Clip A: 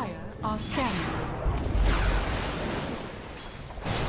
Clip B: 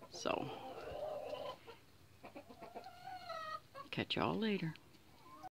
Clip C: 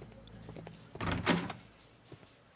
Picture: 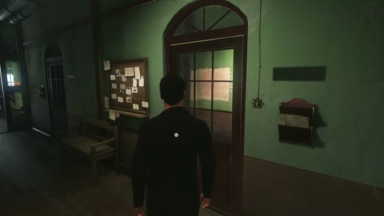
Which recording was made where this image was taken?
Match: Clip C